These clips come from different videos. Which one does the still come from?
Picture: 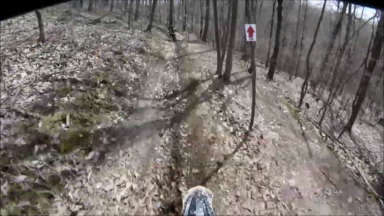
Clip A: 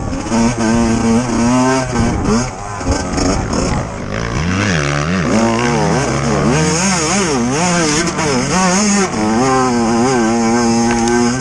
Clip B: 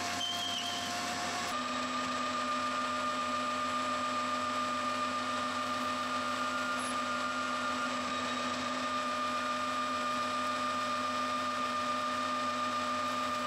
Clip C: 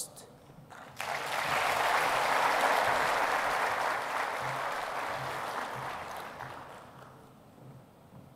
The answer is A